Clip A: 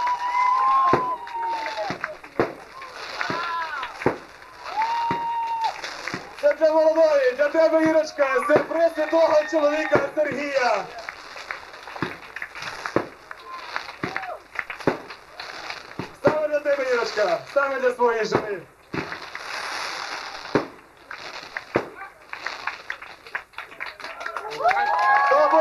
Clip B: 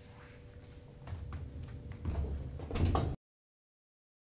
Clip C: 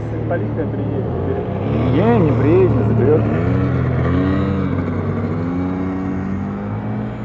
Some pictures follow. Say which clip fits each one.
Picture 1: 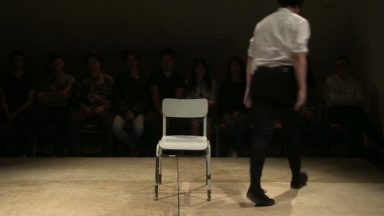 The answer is B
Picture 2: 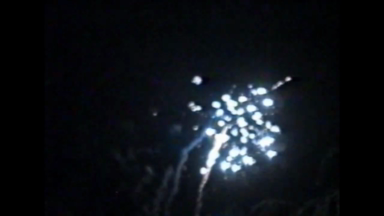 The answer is A